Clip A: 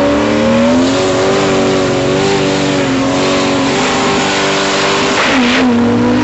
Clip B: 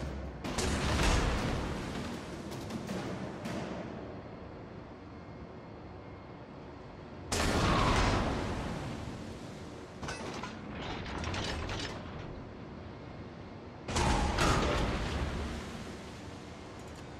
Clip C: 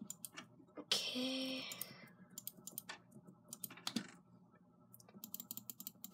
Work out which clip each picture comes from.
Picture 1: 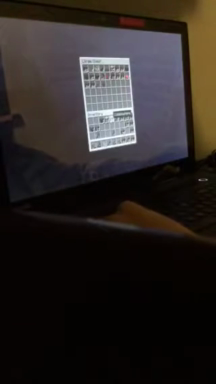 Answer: C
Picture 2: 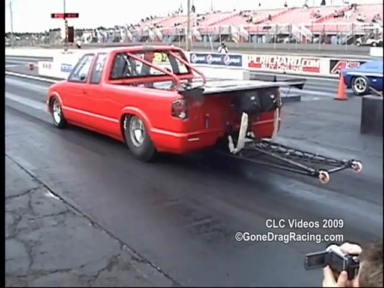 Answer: A